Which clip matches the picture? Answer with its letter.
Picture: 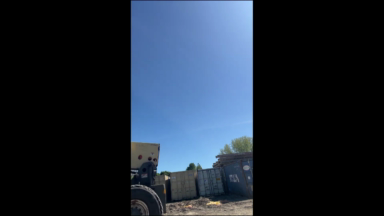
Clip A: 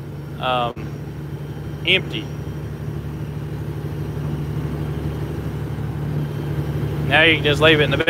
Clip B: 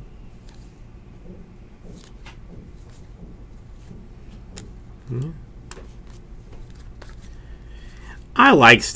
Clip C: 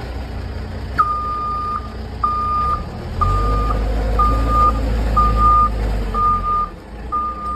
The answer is C